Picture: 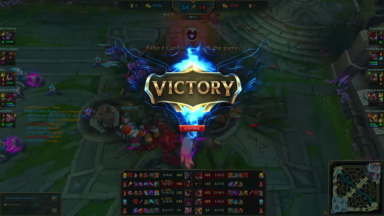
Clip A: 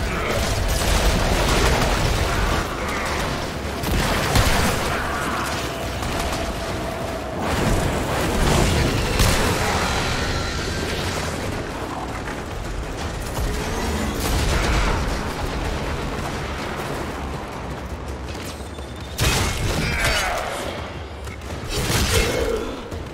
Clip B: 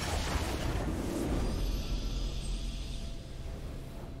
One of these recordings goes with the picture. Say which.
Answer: B